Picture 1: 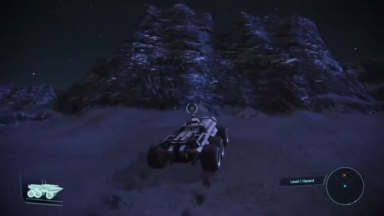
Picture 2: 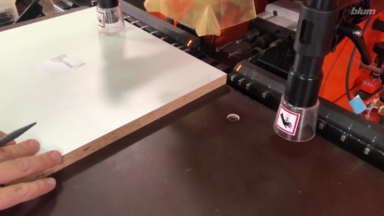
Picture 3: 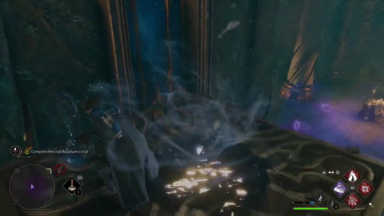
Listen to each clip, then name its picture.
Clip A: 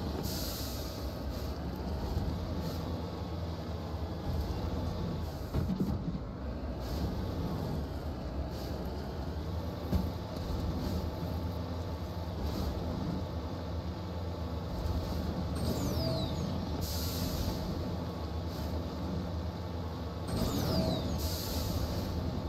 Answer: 1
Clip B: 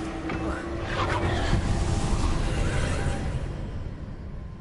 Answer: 3